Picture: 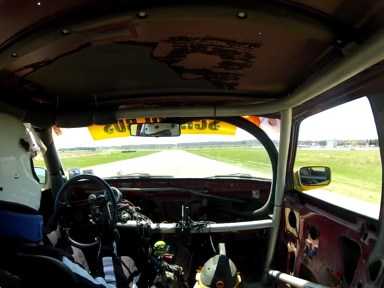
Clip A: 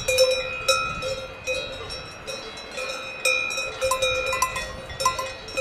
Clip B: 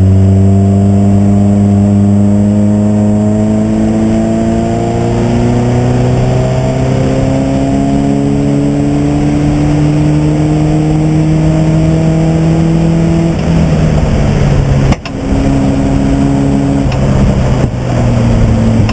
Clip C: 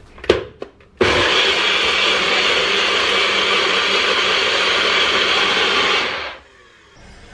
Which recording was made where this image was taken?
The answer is B